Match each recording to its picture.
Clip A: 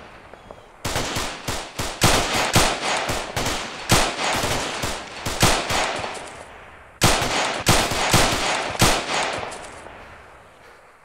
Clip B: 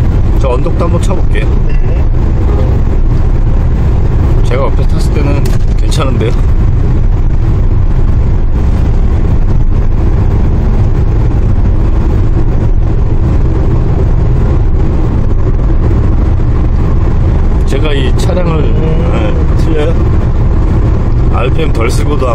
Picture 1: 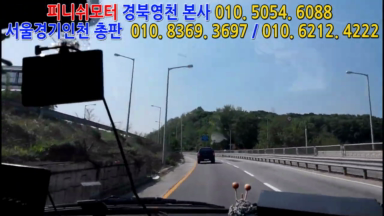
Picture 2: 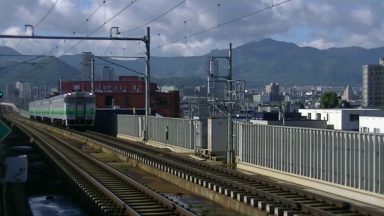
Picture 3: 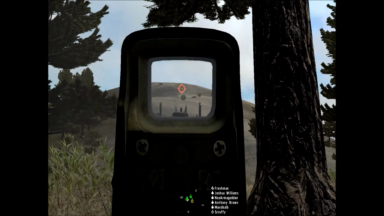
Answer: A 3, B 1